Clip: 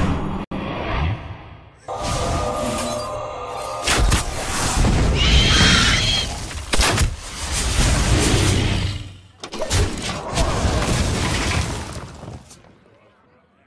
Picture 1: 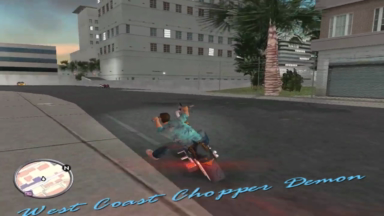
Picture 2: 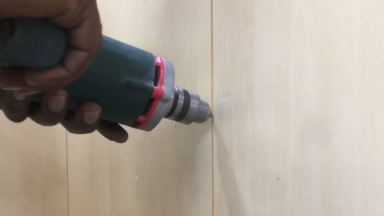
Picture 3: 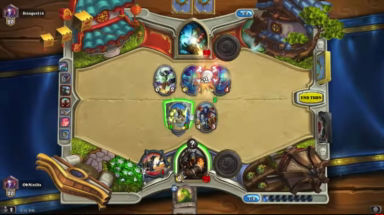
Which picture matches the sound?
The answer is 3